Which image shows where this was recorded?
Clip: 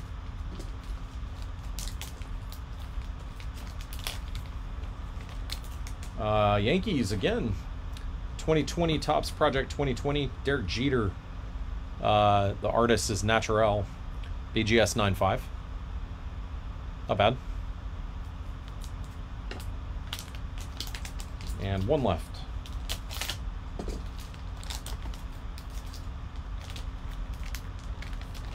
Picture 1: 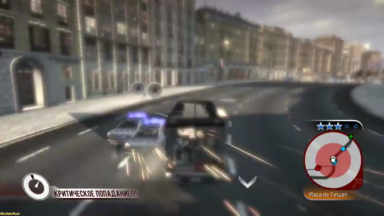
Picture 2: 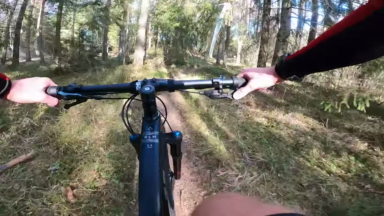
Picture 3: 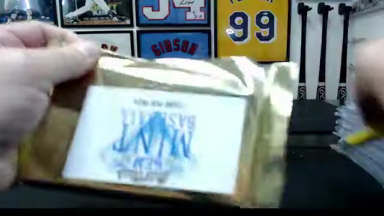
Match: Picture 3